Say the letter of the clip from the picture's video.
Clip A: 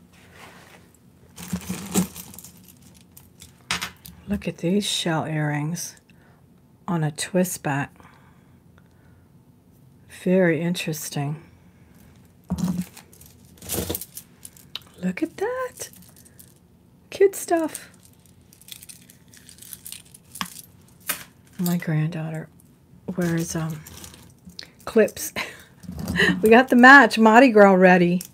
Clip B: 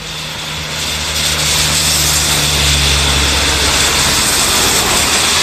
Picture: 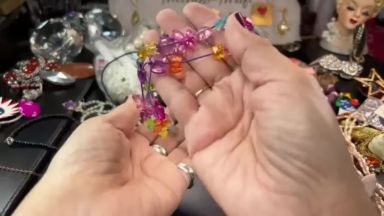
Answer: A